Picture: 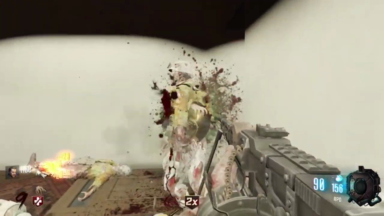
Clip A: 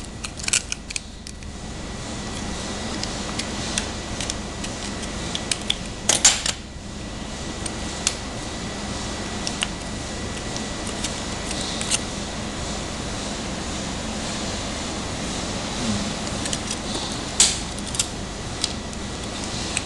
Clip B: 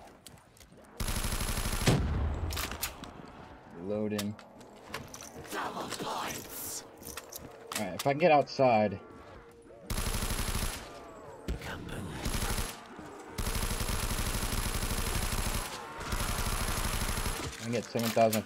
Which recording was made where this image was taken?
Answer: B